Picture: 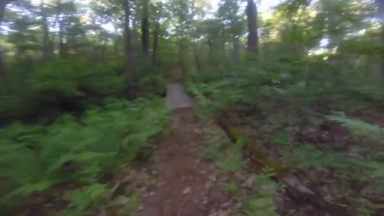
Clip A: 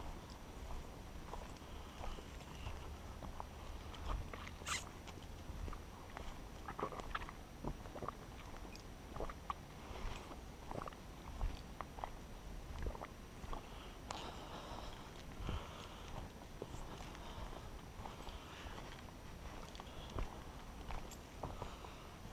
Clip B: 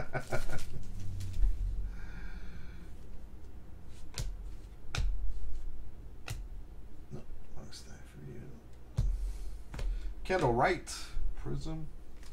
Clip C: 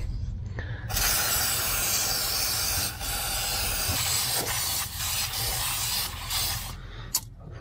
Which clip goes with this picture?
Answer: A